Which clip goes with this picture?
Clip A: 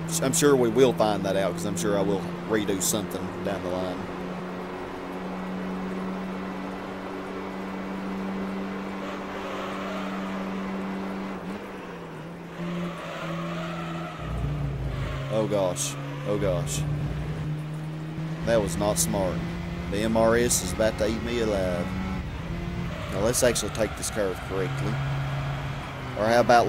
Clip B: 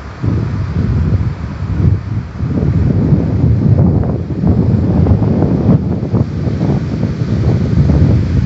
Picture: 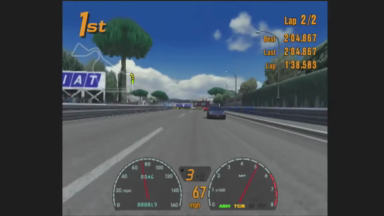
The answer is A